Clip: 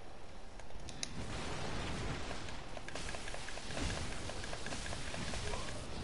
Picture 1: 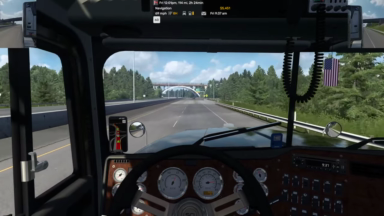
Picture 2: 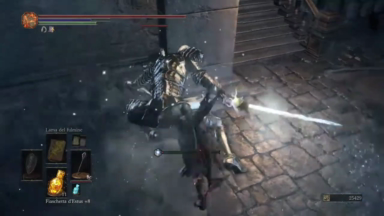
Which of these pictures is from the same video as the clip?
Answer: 2